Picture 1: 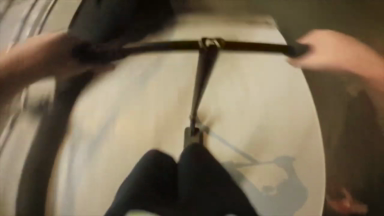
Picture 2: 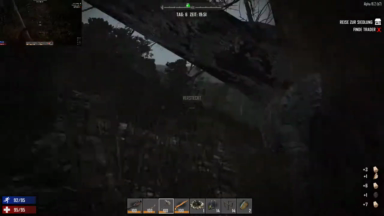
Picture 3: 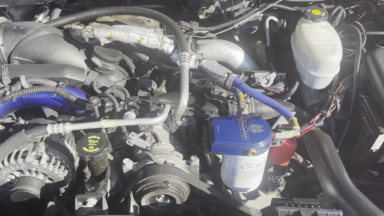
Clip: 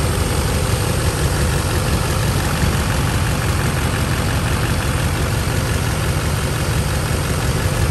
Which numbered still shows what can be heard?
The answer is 3